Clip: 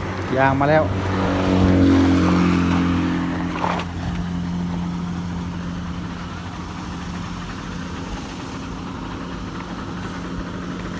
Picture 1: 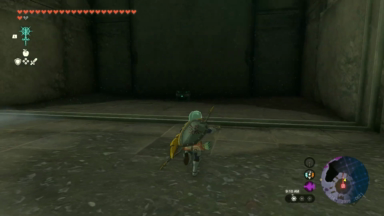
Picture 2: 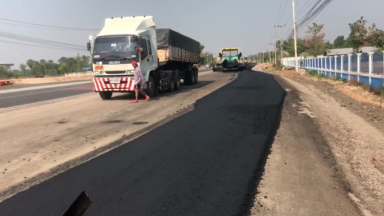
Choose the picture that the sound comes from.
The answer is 2